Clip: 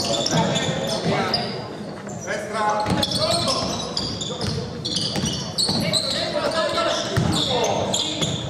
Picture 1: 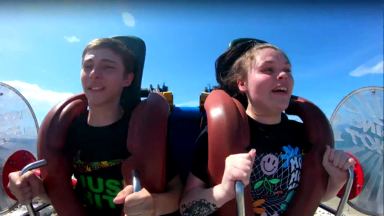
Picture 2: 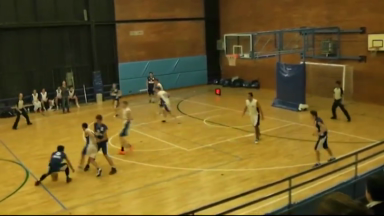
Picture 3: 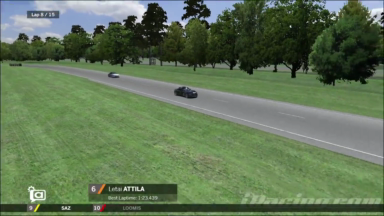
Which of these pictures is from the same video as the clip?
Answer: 2